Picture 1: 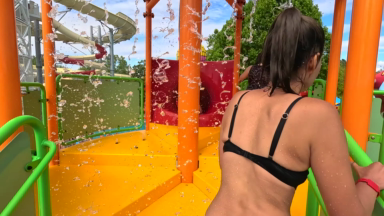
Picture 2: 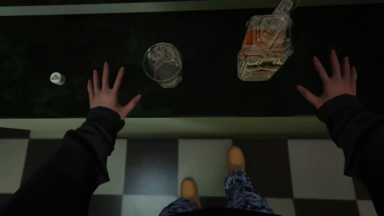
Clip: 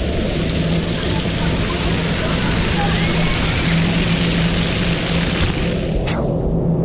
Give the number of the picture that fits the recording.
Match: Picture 1